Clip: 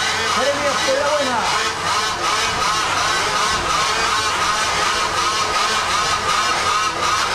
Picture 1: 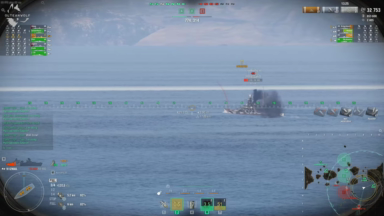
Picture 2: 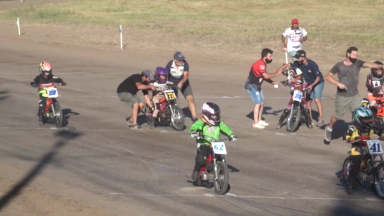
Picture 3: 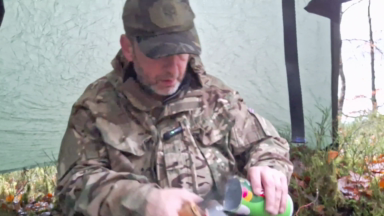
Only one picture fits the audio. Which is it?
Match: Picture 2